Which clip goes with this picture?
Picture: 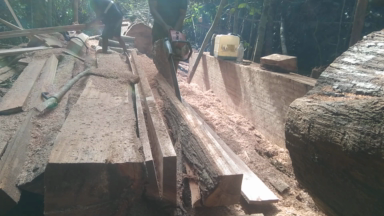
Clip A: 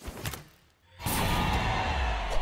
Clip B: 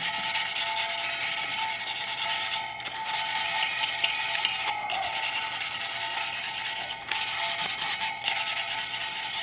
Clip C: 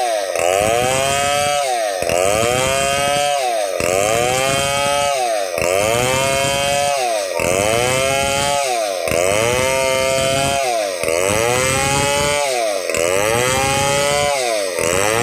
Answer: C